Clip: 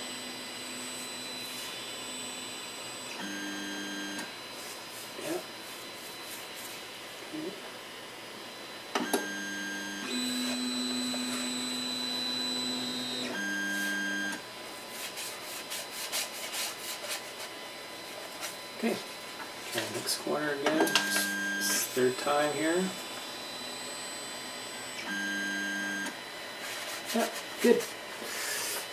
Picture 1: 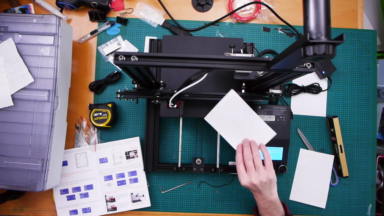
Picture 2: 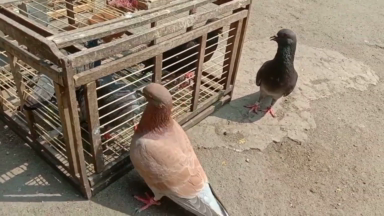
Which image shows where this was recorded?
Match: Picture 1